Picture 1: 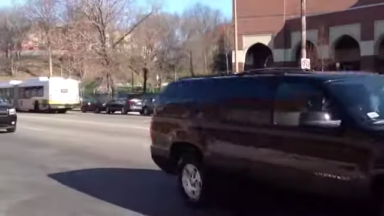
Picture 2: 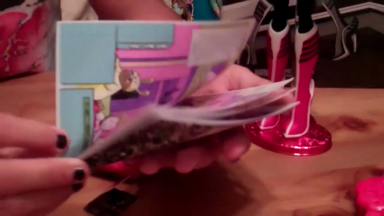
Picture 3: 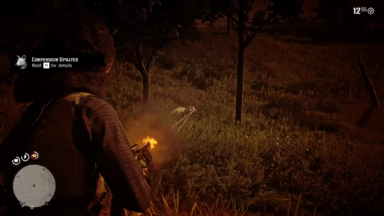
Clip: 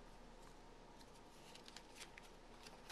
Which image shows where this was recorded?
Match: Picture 2